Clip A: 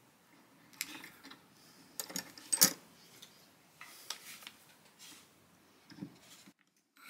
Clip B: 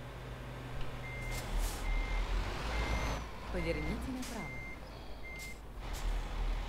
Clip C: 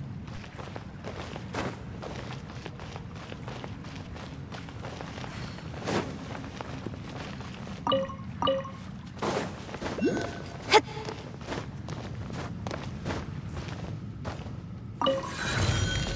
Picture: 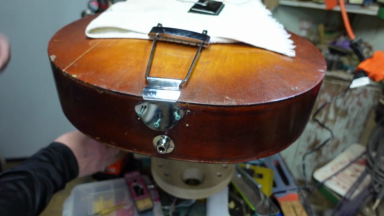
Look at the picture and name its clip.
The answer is A